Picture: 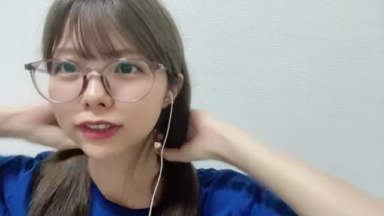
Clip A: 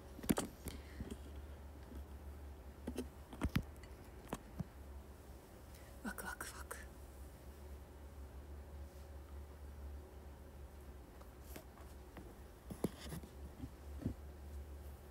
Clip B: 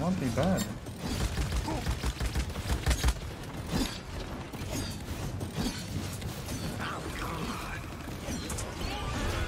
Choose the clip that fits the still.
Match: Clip A